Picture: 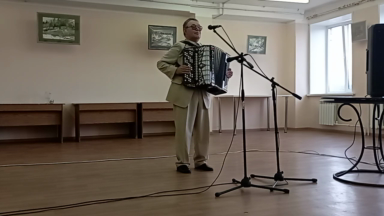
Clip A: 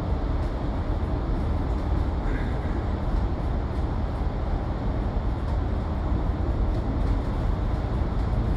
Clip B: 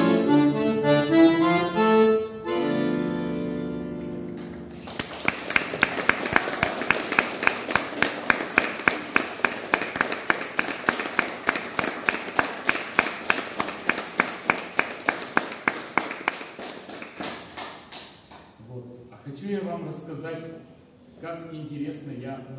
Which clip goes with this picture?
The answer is B